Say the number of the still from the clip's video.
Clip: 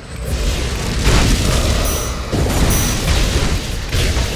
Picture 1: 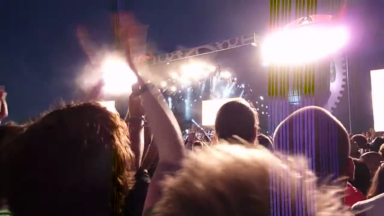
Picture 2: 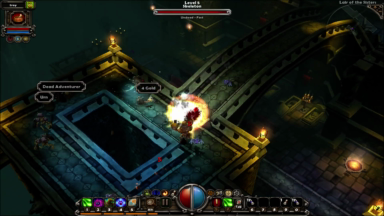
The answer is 2